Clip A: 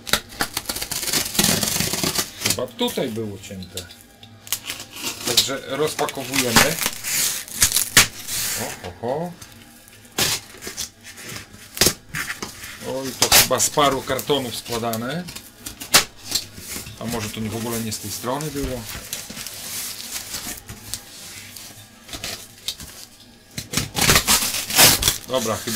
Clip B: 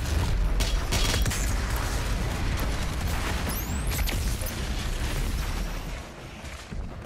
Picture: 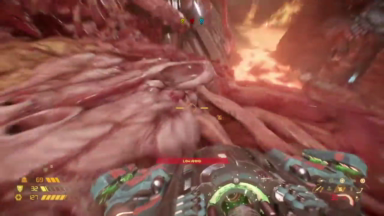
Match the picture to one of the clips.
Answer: B